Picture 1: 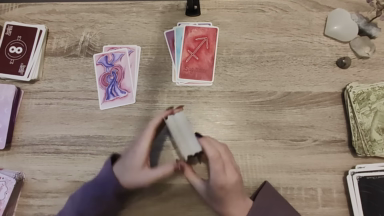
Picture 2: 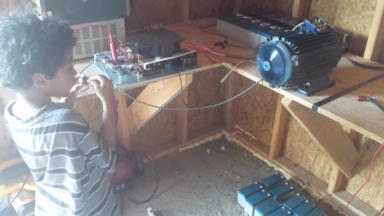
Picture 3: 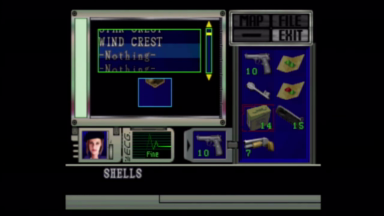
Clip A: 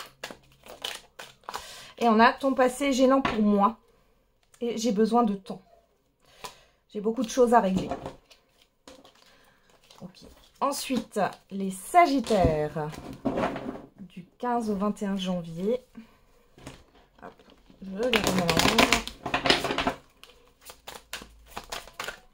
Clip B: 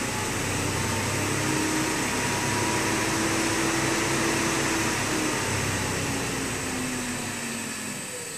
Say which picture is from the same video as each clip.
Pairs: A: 1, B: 2